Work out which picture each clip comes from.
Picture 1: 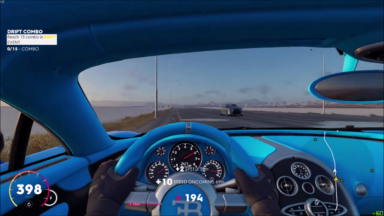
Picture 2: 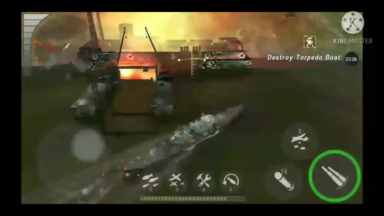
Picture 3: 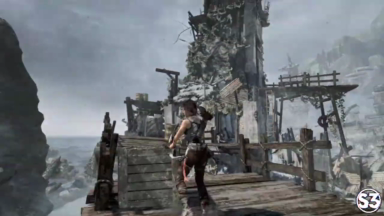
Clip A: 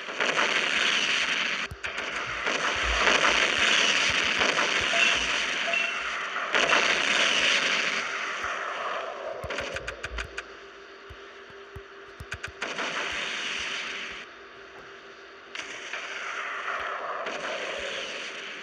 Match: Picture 2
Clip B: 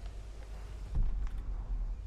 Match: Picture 3